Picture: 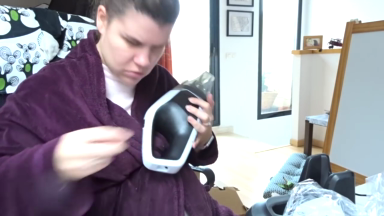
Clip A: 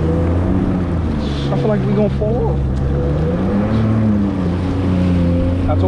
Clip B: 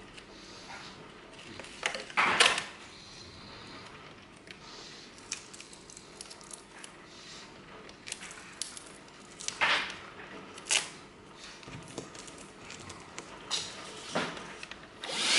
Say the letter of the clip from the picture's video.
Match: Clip B